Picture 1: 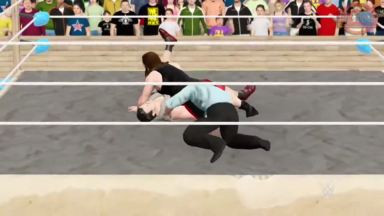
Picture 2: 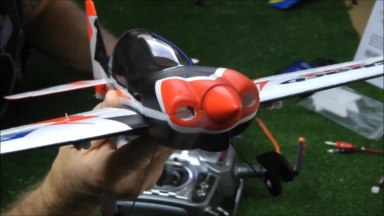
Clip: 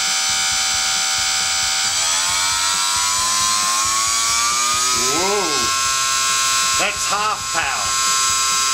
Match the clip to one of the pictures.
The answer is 2